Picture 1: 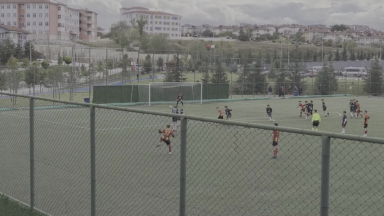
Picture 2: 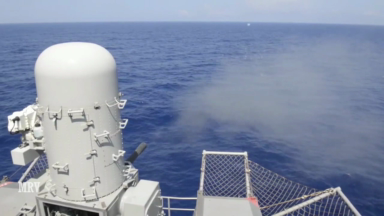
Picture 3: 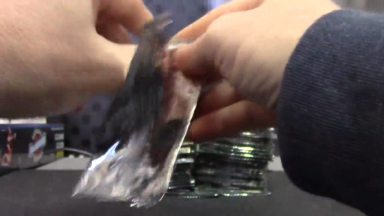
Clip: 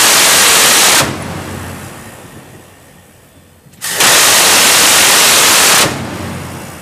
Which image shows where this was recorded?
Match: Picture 2